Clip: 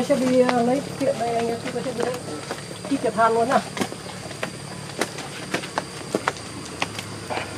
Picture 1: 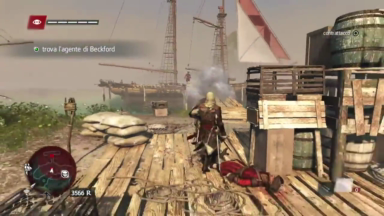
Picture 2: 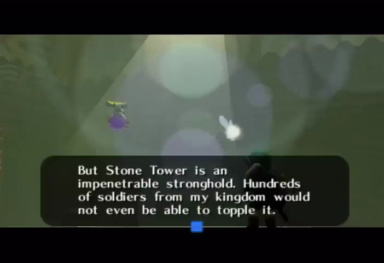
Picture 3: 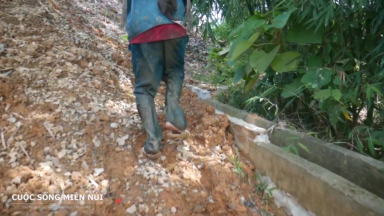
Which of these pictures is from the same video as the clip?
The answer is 3